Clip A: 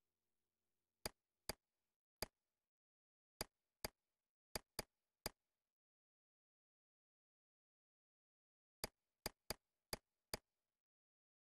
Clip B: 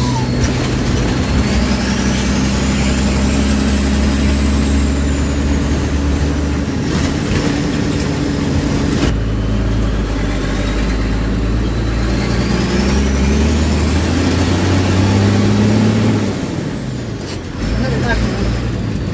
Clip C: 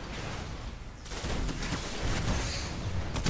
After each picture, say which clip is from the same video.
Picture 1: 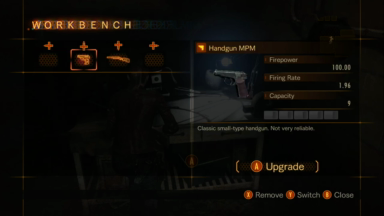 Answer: A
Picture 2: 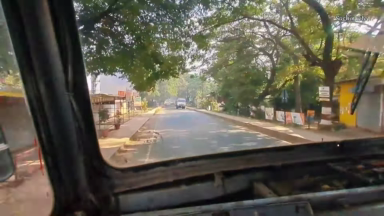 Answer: B